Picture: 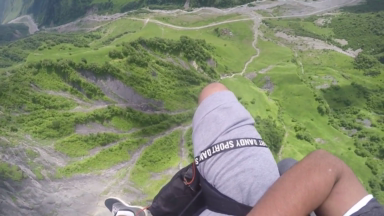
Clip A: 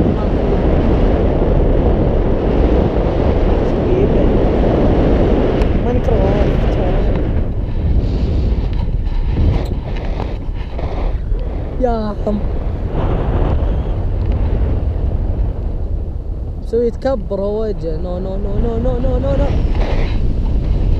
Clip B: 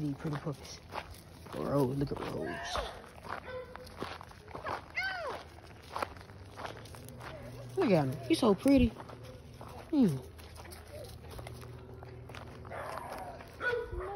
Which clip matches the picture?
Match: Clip A